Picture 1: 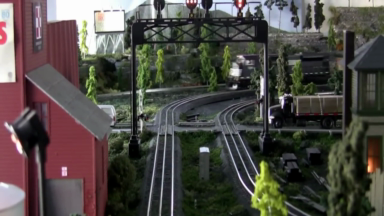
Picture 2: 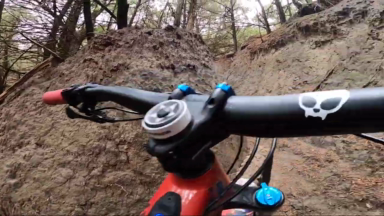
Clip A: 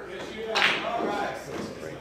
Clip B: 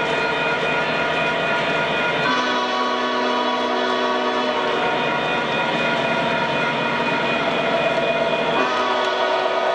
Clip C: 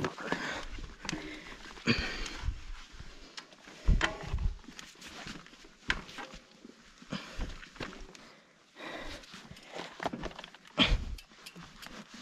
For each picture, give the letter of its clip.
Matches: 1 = B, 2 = C